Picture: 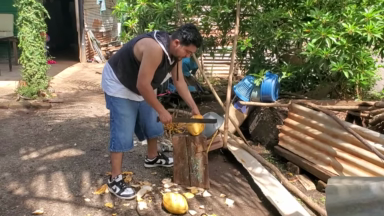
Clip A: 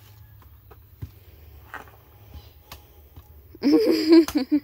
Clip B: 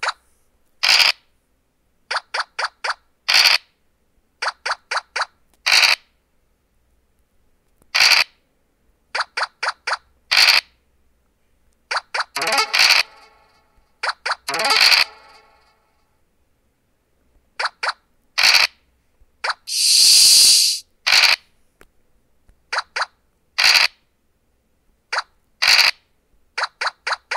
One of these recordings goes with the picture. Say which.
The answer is A